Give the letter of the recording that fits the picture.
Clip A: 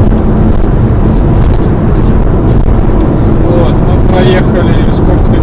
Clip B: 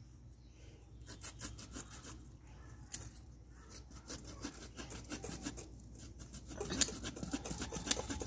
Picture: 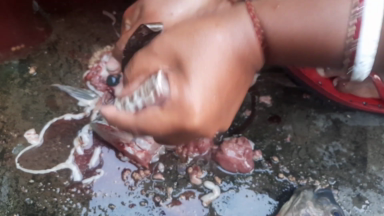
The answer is B